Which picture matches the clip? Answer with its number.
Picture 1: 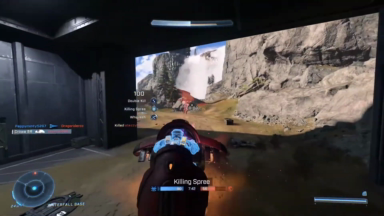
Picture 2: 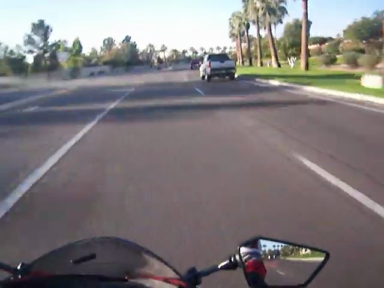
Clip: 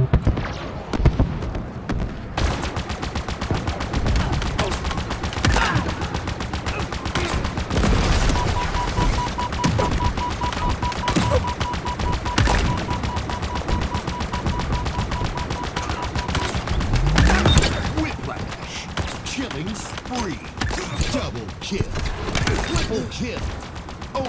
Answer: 1